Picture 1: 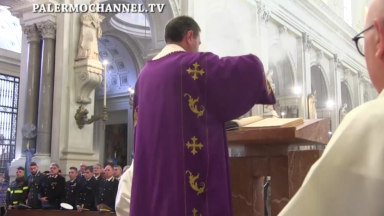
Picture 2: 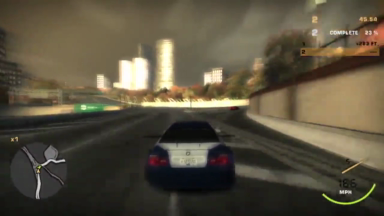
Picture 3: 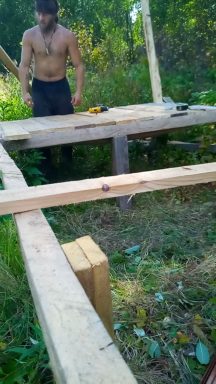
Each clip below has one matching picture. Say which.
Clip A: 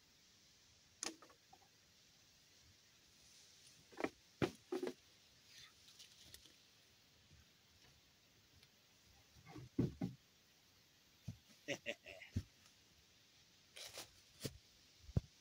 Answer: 3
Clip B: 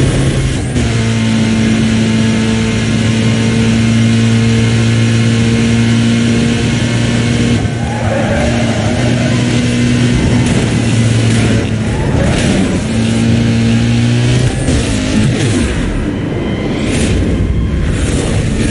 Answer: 2